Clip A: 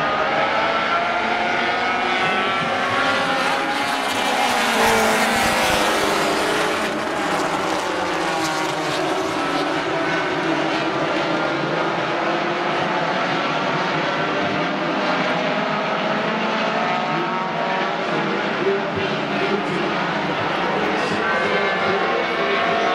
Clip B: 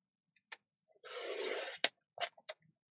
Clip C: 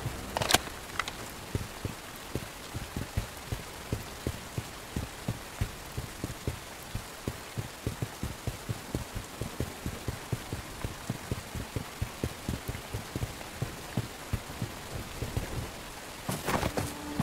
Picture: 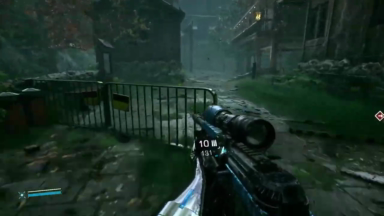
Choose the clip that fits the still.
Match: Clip C